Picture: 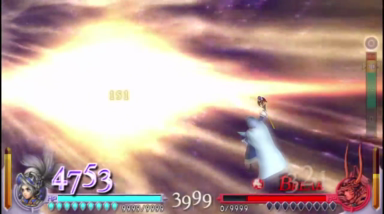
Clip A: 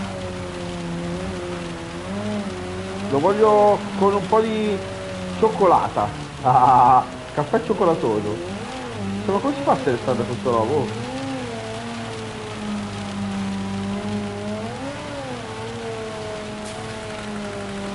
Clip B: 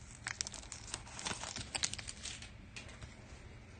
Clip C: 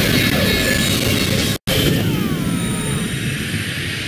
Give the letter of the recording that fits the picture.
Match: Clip C